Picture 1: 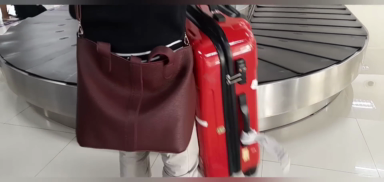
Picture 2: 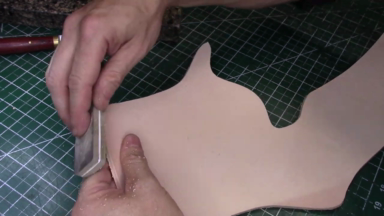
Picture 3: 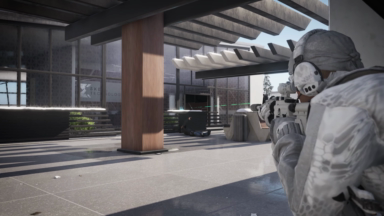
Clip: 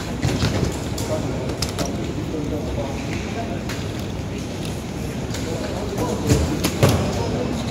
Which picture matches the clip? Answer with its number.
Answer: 1